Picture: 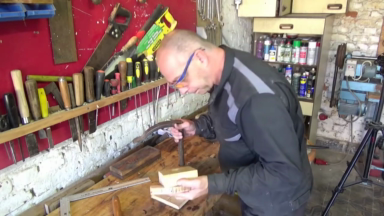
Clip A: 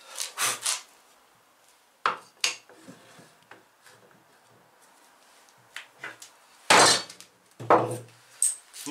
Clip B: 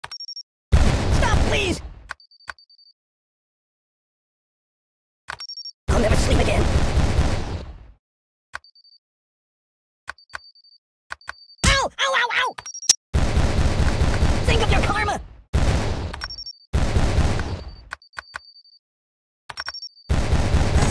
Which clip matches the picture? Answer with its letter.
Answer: A